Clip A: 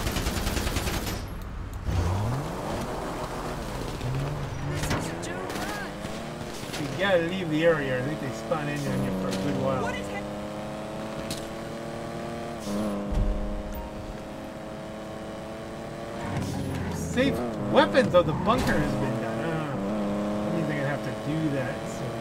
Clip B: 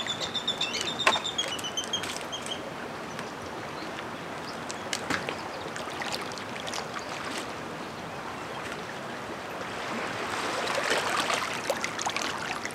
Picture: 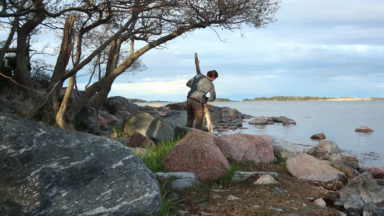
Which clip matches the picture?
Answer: B